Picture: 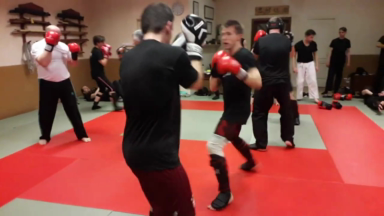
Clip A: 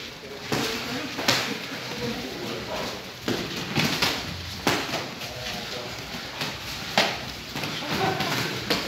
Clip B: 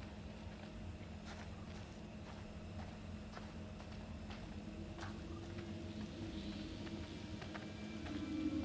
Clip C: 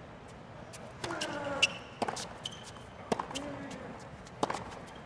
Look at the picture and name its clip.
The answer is A